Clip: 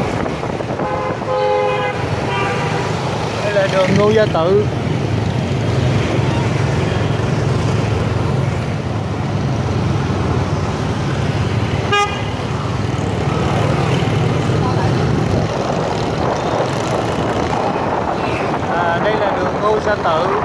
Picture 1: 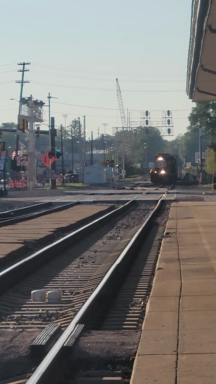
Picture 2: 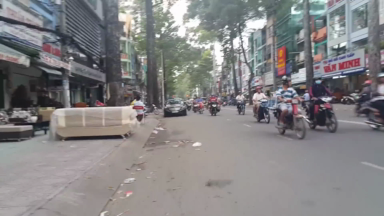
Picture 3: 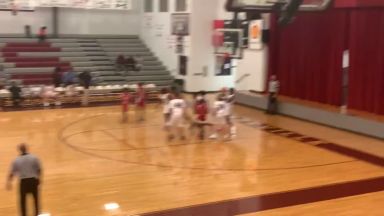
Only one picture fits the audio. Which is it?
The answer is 2